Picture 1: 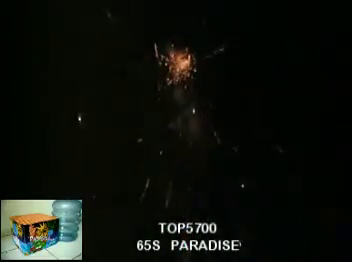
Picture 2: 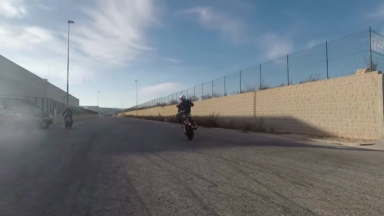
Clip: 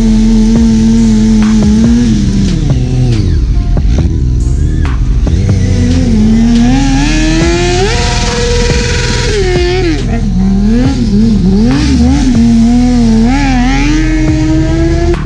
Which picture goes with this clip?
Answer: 2